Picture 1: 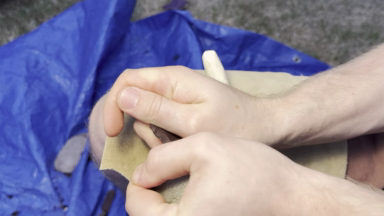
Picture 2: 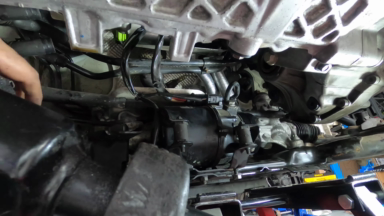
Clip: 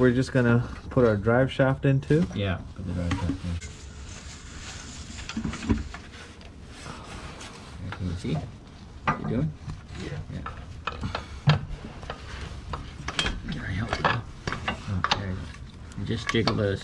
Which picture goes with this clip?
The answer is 2